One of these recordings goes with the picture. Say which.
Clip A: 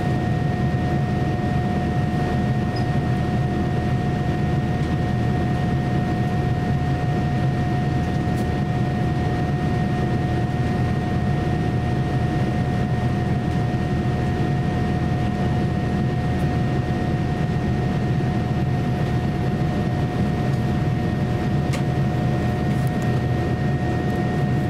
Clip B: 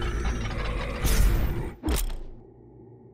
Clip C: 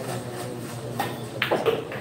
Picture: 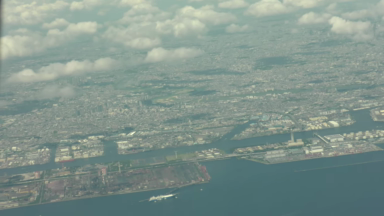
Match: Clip A